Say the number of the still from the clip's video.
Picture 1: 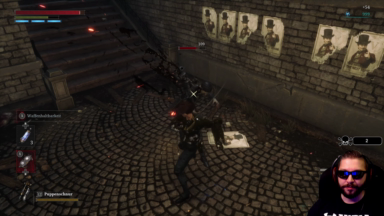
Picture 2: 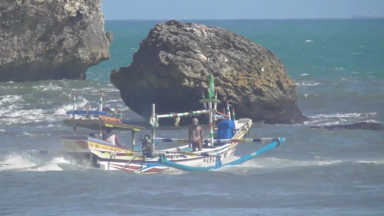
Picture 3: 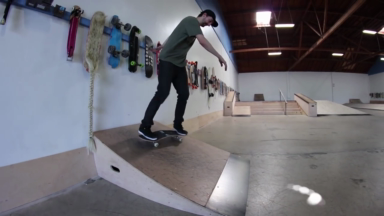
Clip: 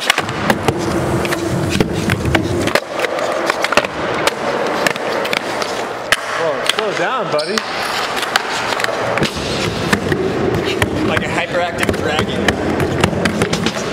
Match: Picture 3